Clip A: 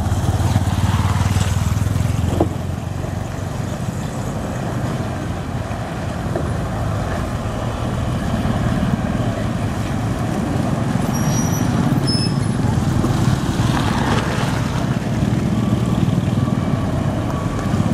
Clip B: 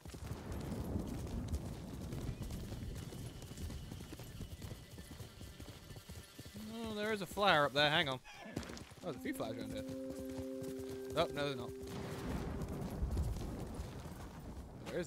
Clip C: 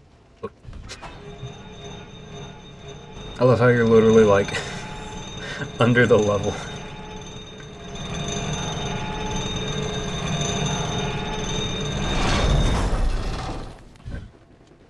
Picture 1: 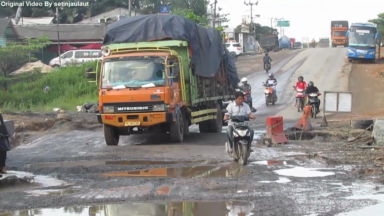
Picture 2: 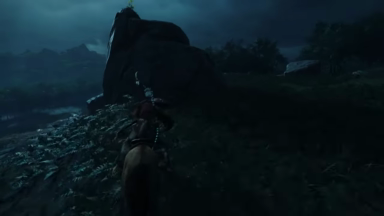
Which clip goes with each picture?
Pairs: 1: A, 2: B